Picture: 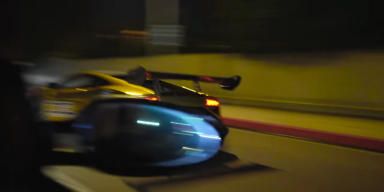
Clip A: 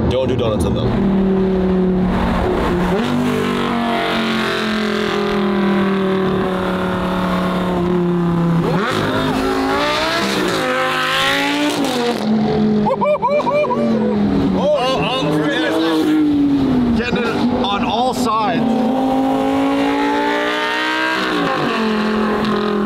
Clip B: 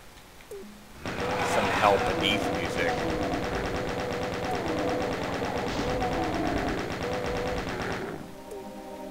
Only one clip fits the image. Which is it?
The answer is A